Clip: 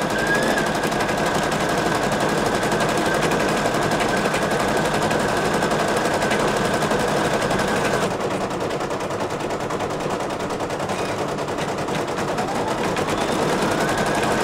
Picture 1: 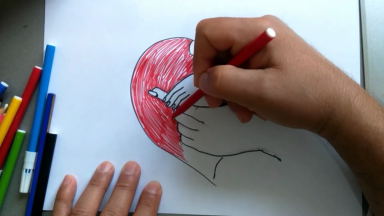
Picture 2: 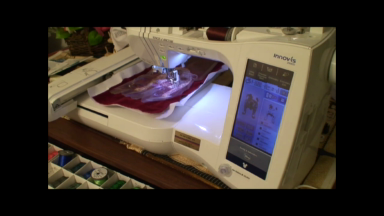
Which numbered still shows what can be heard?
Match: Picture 2